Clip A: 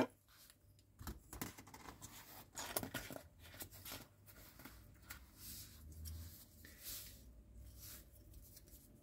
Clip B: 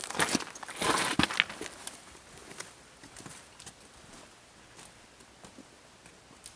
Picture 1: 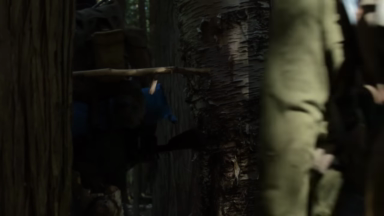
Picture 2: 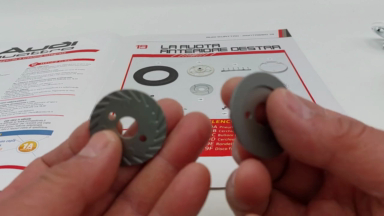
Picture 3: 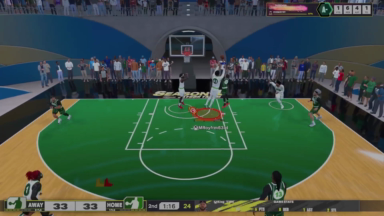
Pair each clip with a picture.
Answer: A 2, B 1